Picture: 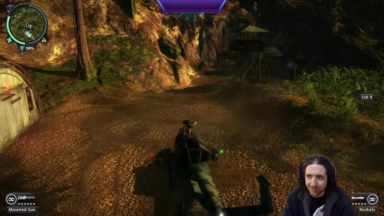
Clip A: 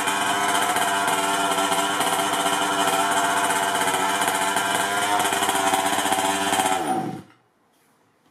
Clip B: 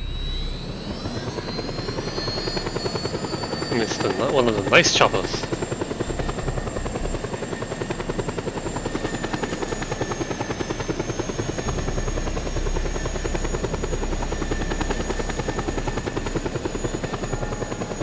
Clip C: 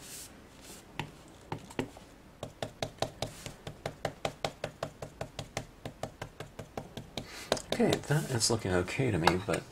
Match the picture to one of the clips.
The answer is B